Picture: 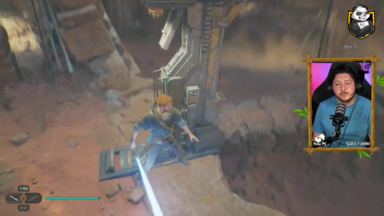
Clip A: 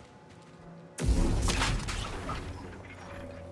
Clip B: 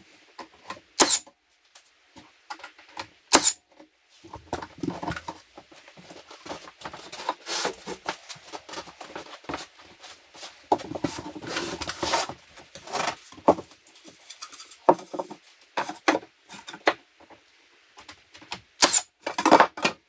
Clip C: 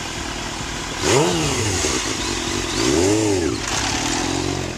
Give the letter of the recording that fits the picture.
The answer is A